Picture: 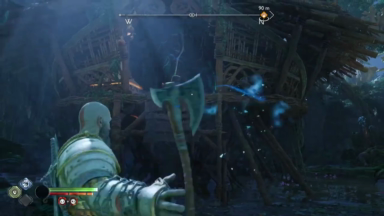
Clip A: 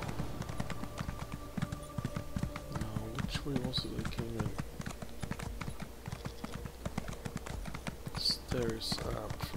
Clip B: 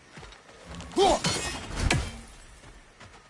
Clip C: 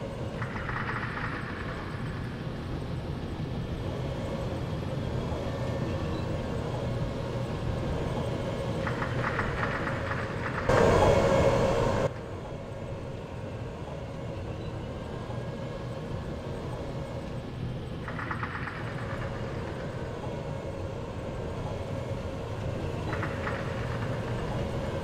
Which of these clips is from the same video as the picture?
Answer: B